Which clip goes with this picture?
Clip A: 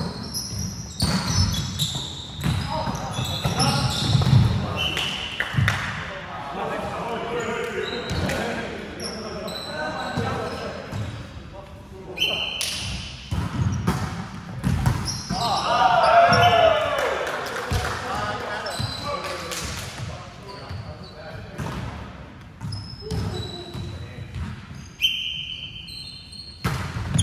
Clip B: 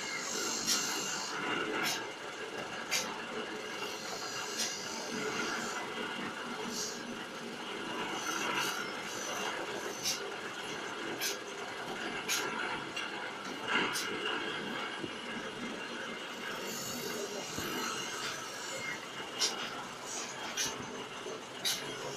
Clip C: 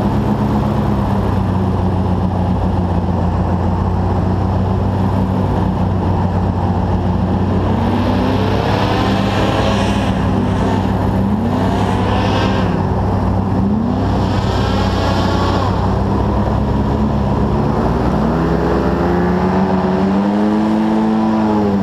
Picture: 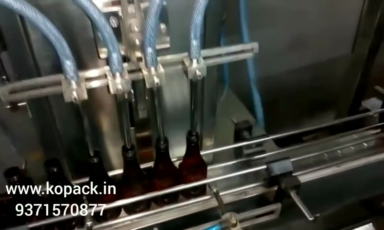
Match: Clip B